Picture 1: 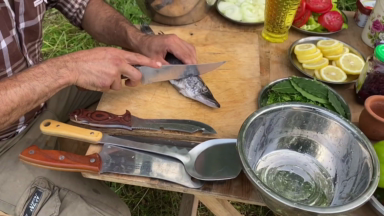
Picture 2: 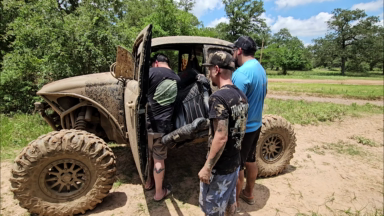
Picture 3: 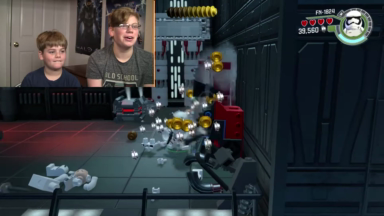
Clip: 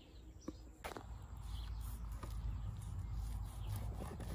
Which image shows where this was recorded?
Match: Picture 1